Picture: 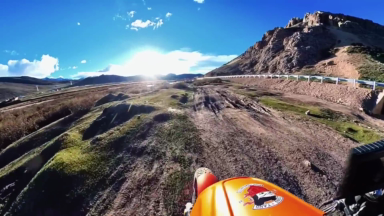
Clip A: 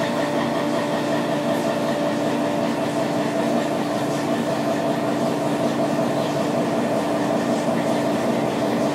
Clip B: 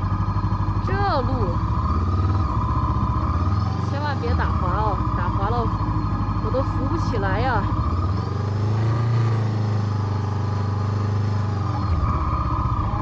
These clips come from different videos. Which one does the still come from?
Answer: B